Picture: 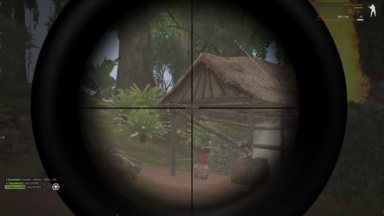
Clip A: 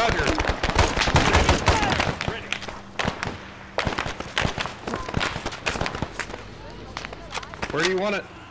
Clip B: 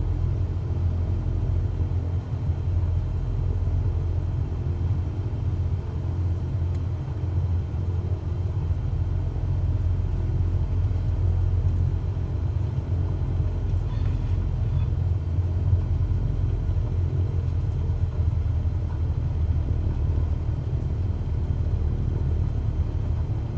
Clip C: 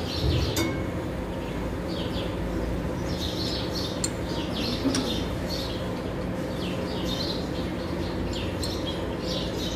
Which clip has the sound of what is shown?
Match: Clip A